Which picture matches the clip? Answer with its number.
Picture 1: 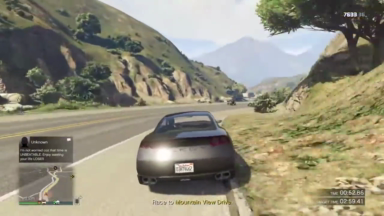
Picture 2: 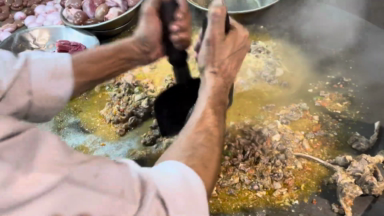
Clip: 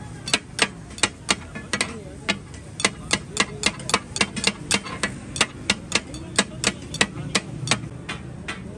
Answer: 2